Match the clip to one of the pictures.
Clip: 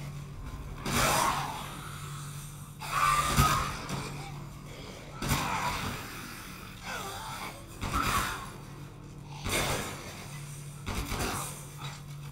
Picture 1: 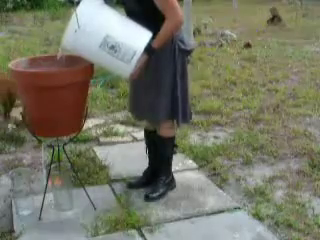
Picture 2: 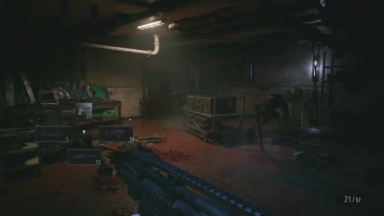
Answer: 2